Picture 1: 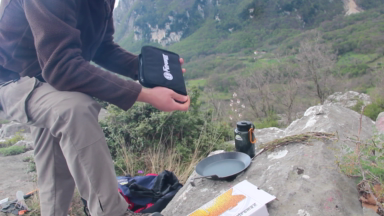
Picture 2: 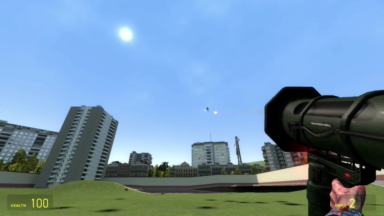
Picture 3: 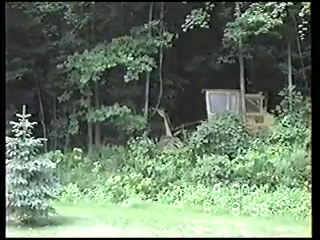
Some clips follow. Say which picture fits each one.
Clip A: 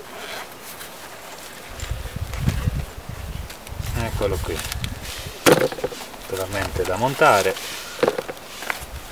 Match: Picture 1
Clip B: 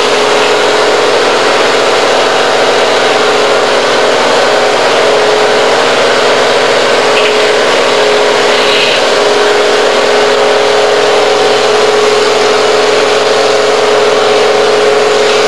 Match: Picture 3